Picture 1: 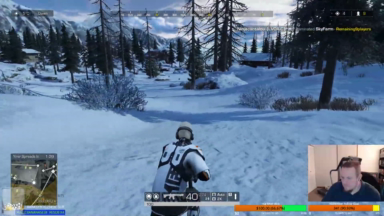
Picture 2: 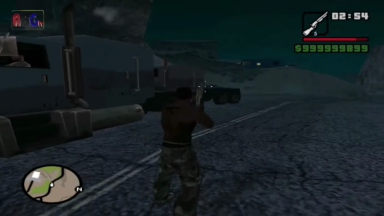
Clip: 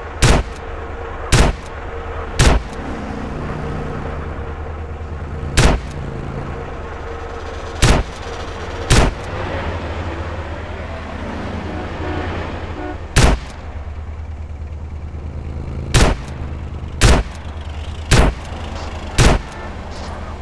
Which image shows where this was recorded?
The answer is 2